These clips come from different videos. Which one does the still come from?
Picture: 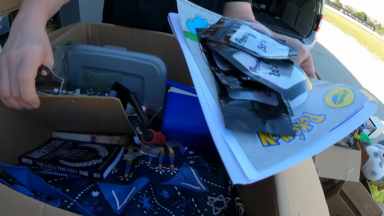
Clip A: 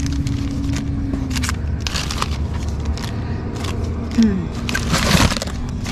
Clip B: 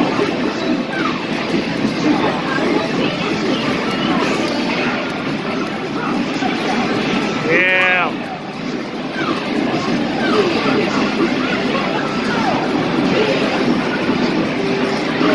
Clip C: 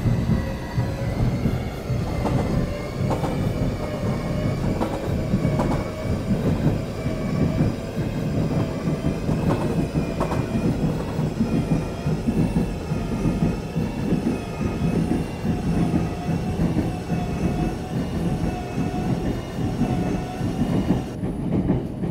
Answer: A